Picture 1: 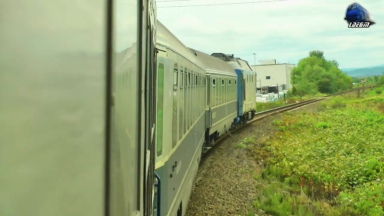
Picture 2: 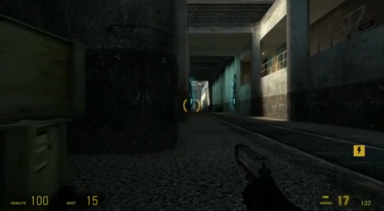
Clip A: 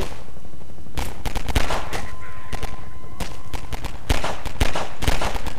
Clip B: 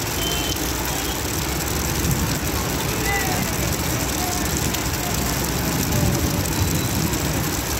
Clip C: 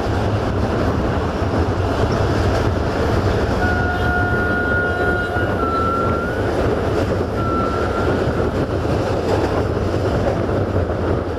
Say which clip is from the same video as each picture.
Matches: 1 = C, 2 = A